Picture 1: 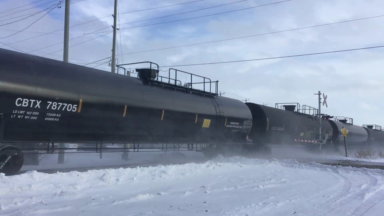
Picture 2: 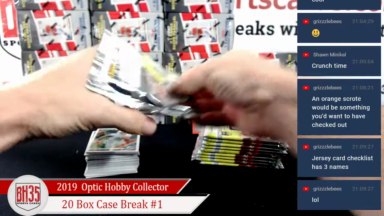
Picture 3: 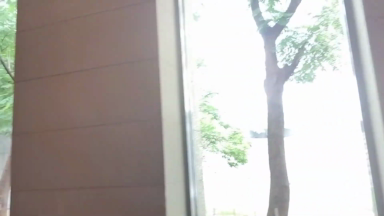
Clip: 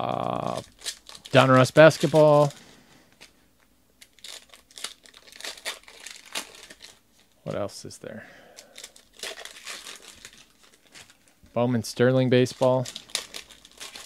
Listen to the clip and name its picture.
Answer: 2